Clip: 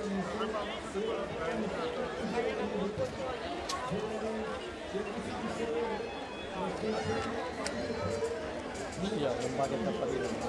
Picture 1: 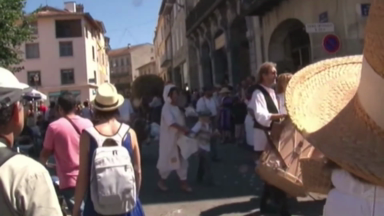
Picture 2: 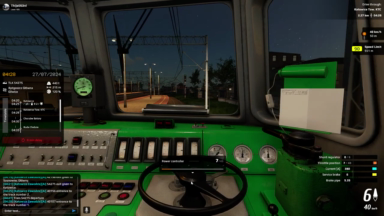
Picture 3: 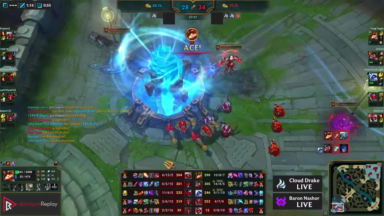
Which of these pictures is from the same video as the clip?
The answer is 1